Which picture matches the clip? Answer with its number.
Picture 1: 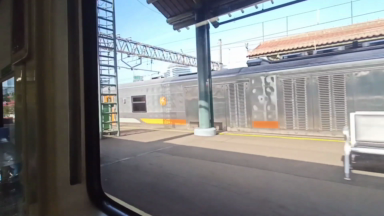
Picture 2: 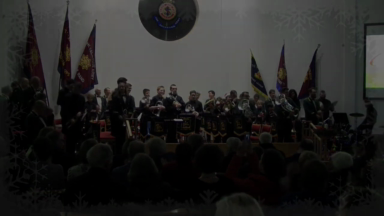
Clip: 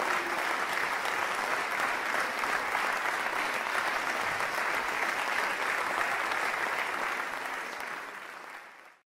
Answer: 2